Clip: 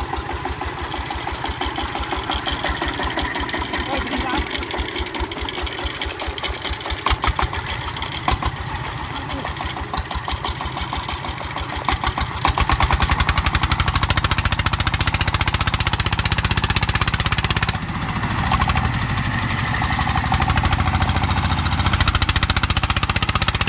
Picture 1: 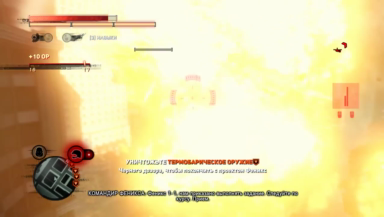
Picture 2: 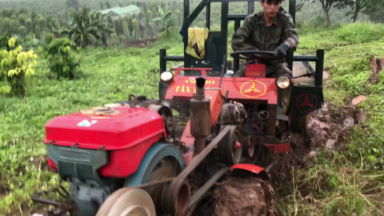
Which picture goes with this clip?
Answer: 2